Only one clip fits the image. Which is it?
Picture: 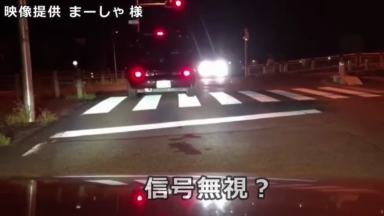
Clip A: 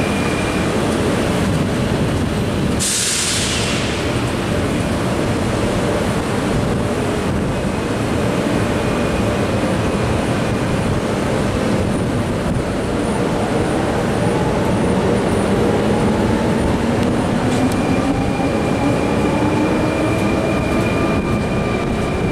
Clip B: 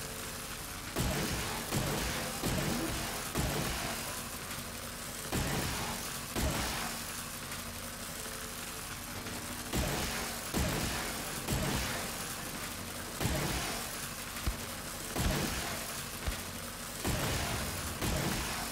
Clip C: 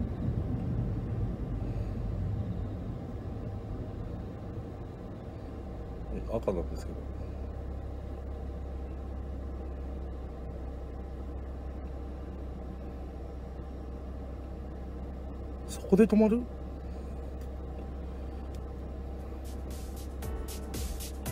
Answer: C